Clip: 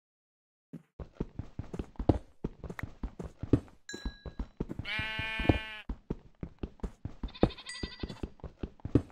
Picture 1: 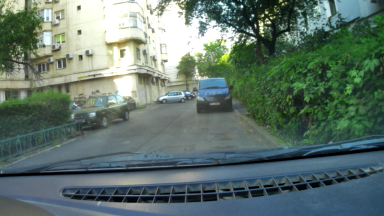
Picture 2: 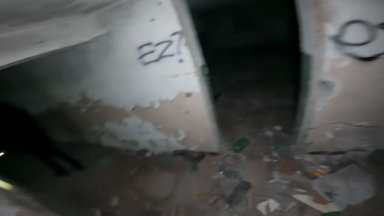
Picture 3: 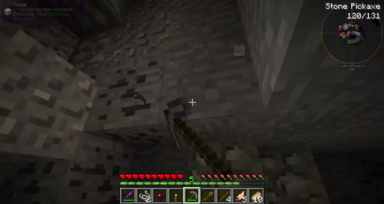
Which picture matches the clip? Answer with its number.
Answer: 3